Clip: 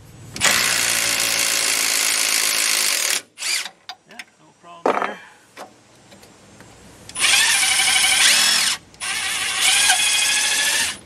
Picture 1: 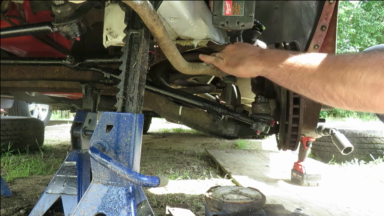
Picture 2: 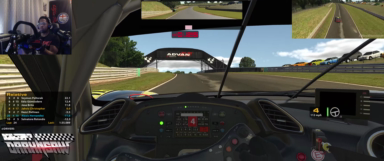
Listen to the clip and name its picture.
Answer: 1